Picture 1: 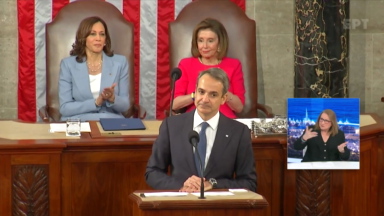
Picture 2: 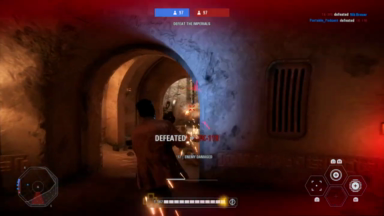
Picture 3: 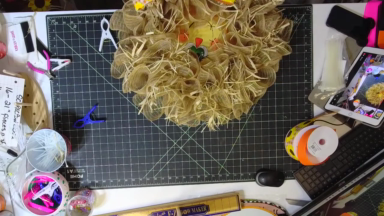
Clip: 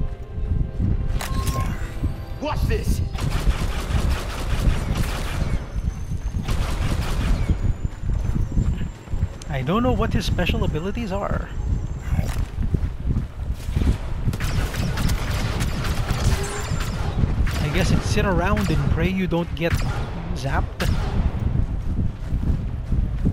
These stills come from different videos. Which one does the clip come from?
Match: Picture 2